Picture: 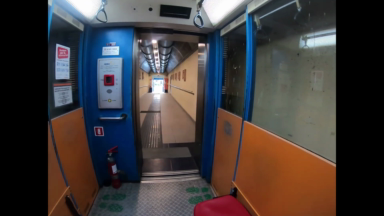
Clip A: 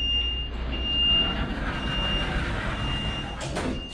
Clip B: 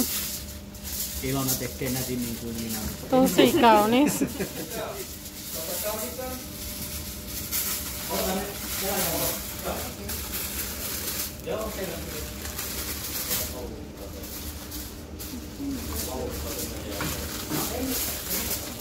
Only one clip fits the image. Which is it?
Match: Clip A